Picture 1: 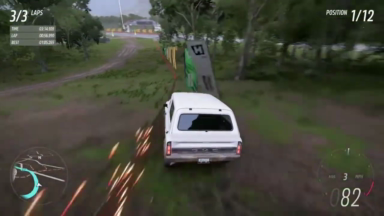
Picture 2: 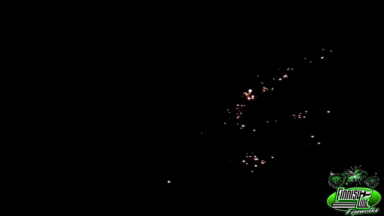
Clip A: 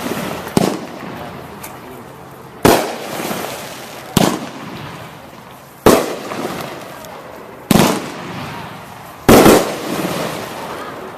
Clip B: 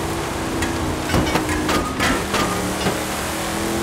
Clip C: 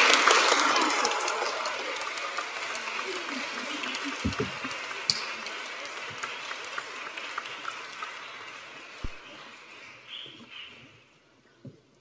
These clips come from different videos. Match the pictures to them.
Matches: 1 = B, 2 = A